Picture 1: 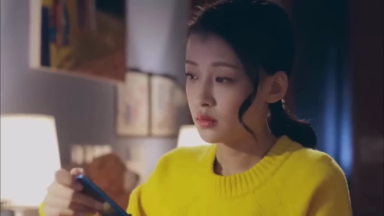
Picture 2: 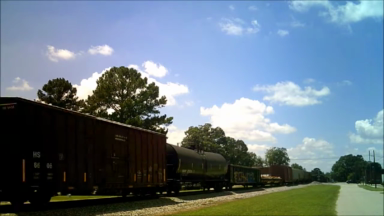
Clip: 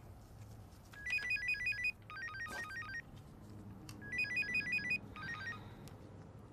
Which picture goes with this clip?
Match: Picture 1